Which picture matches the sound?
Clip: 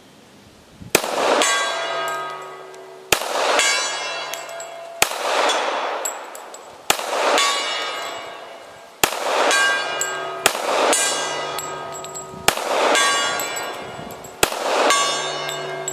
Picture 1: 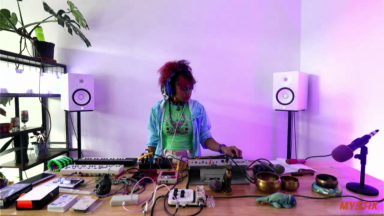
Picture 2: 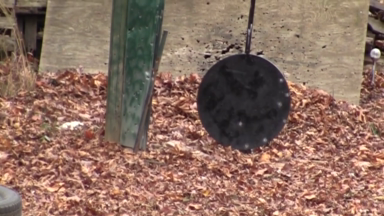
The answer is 2